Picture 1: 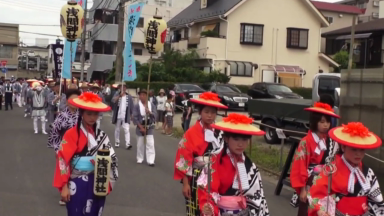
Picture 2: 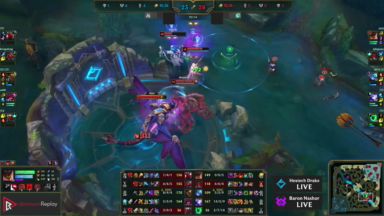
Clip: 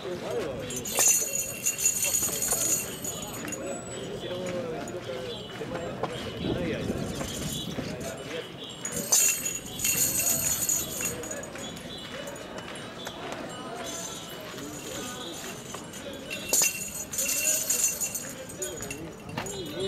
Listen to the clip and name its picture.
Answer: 1